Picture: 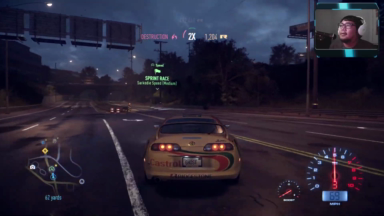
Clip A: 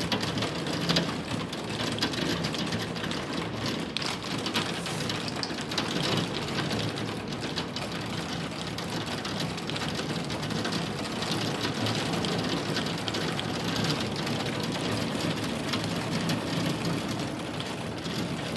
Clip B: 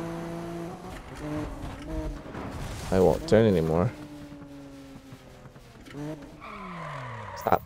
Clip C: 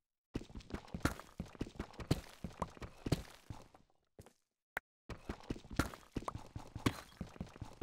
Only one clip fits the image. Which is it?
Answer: B